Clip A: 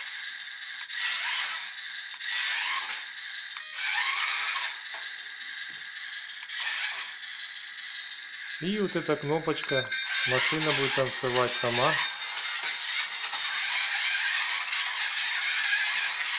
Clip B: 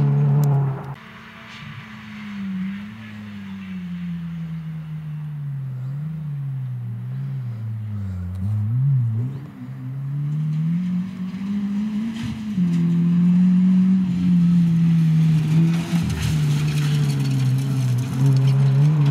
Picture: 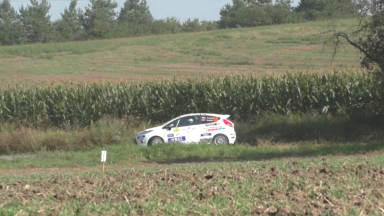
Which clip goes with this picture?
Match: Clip B